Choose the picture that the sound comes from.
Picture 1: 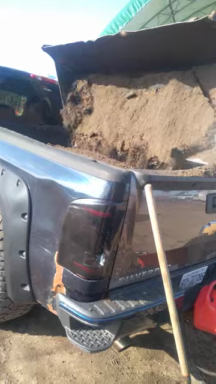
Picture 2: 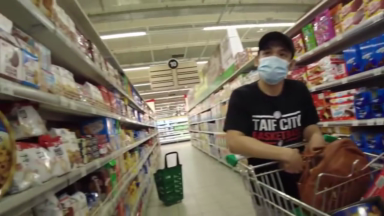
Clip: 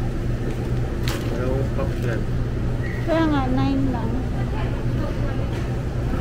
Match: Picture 2